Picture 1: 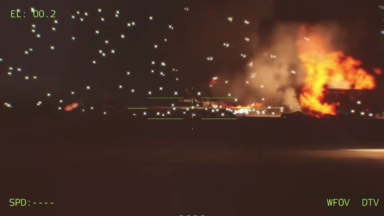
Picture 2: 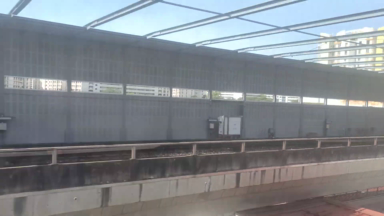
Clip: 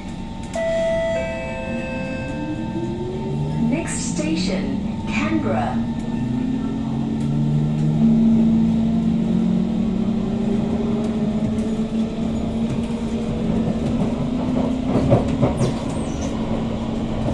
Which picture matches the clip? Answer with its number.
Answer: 2